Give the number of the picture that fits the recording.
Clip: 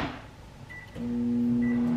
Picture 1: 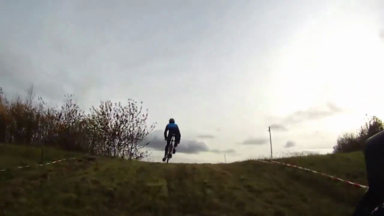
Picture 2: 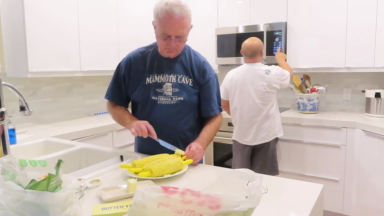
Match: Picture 2